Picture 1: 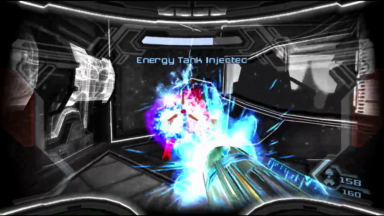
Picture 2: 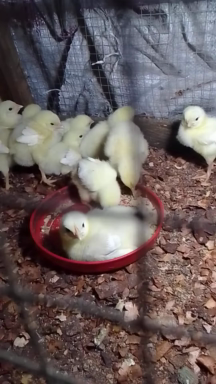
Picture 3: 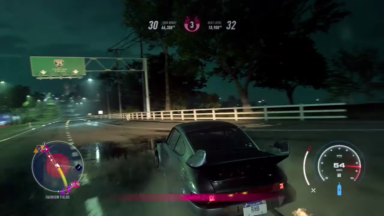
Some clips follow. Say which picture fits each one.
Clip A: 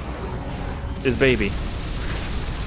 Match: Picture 1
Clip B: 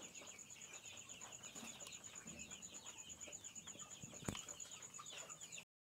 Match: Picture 2